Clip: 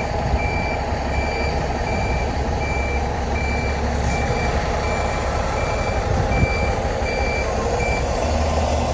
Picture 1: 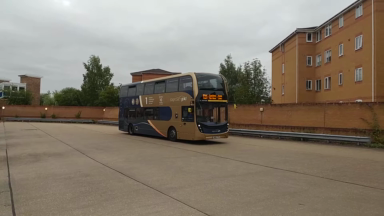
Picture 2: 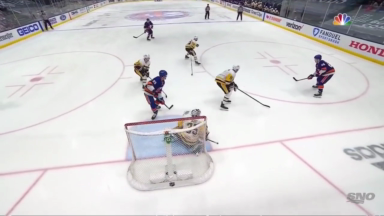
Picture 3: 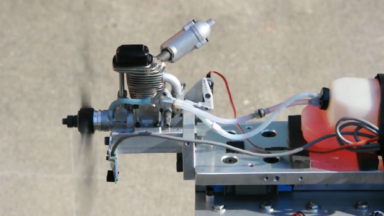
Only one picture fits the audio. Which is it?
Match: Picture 1